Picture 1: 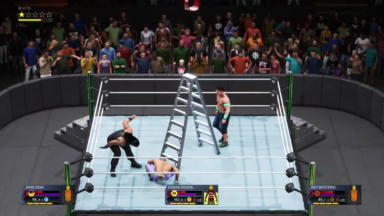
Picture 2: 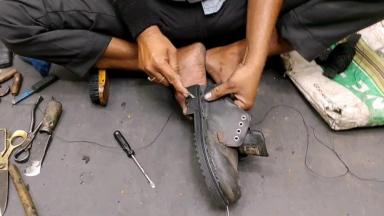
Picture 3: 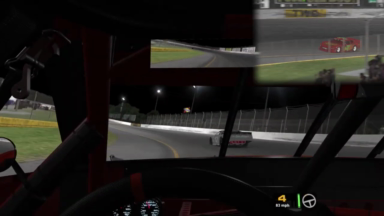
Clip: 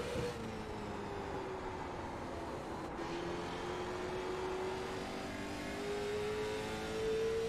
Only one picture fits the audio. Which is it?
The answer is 3